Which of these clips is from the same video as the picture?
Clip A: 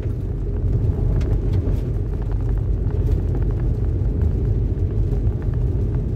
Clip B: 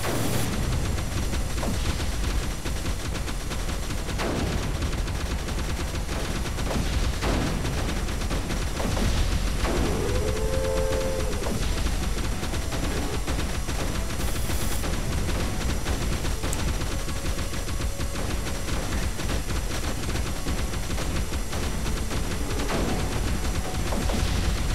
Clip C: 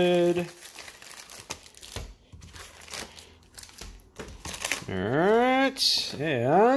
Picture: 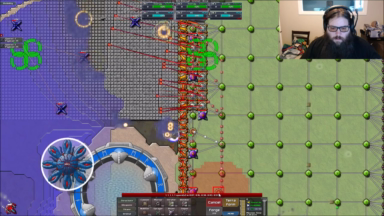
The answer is B